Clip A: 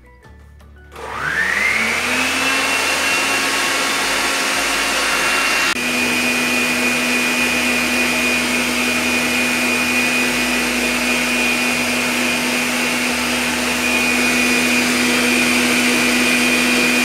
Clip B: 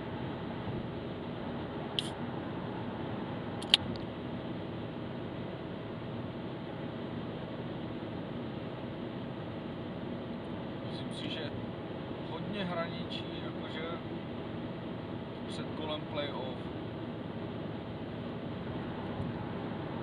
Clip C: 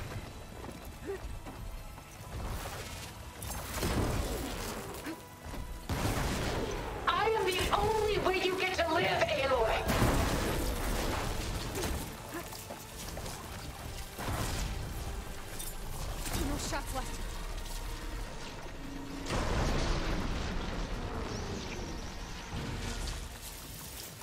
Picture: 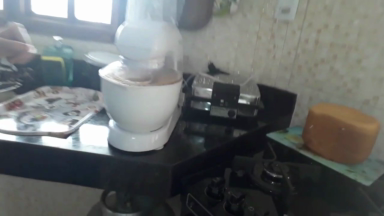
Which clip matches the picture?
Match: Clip A